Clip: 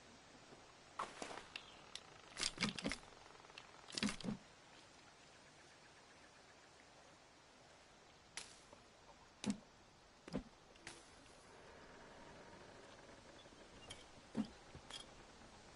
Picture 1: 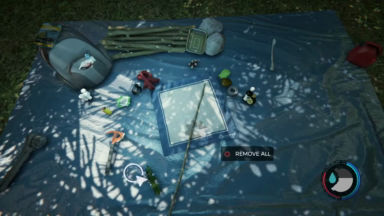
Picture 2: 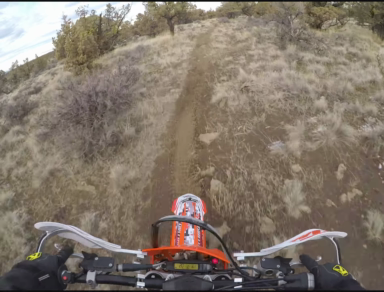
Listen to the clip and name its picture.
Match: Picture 1